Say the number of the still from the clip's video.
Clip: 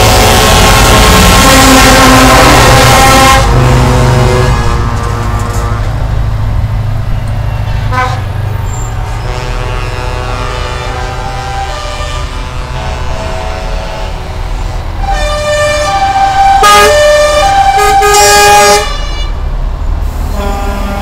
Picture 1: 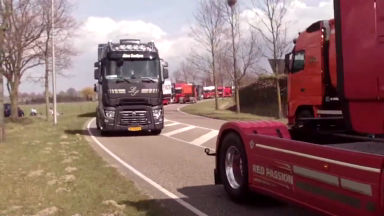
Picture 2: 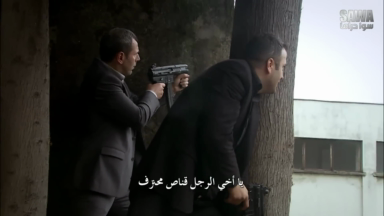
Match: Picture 1